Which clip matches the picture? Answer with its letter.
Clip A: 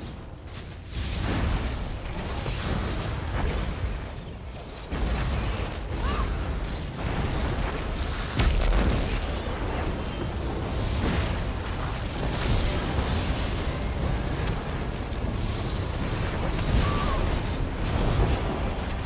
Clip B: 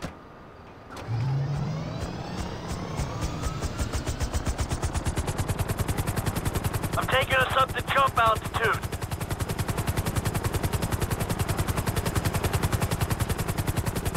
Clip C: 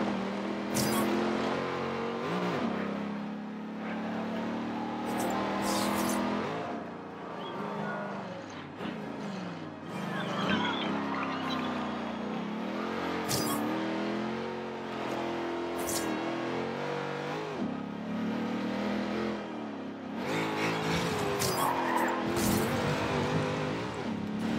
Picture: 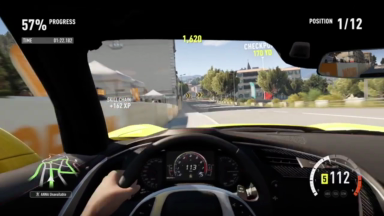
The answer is C